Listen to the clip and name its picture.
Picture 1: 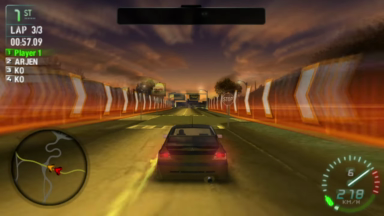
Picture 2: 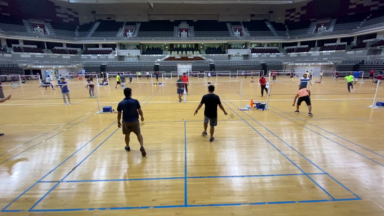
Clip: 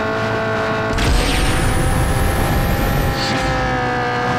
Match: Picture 1